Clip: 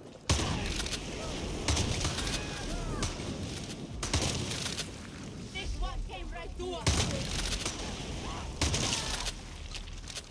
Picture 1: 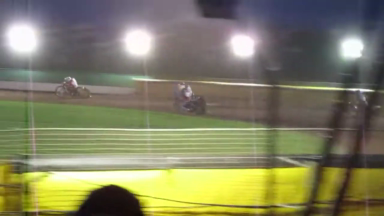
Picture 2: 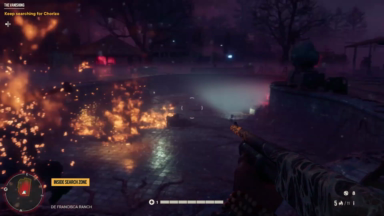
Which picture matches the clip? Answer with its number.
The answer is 2